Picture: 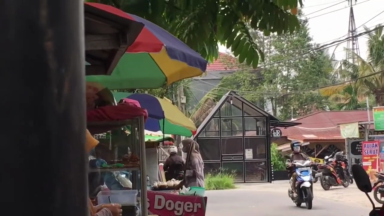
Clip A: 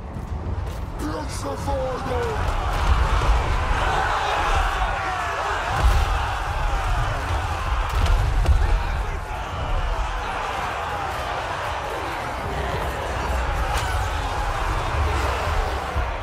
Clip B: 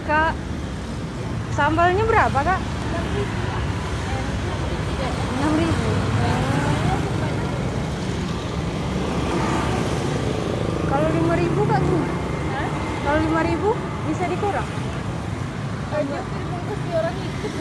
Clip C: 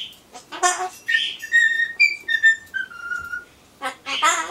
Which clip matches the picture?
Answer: B